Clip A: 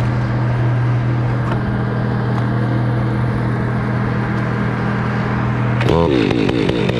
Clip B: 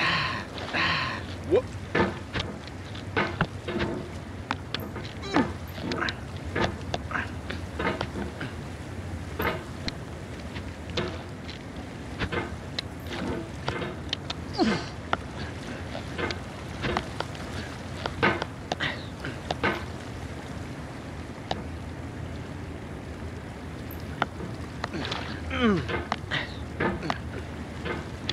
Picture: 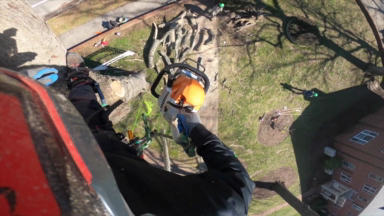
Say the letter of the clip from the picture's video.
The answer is A